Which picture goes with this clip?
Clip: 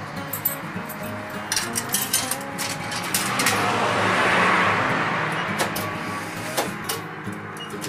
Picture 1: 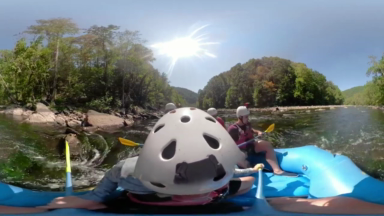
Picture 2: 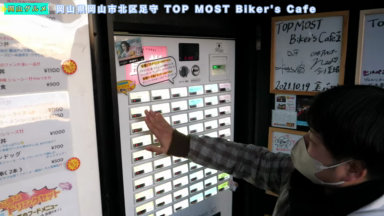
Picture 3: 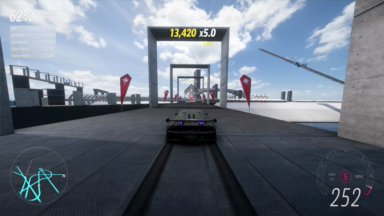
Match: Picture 2